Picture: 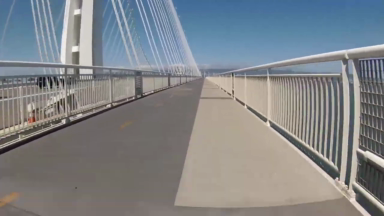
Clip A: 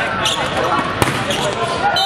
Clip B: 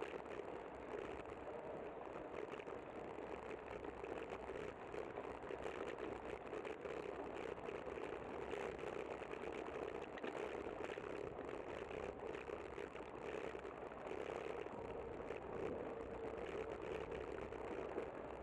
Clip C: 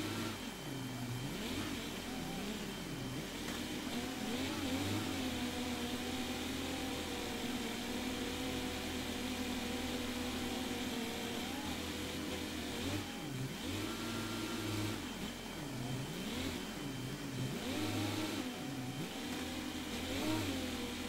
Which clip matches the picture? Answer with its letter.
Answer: B